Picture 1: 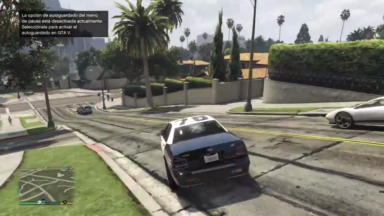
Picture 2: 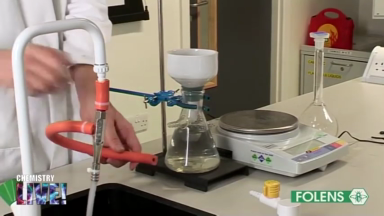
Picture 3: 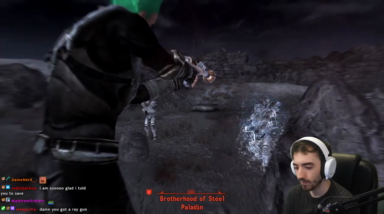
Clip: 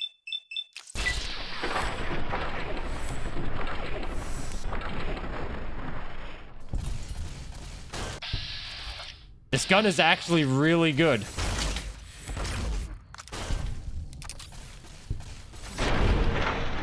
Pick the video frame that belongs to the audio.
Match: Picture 3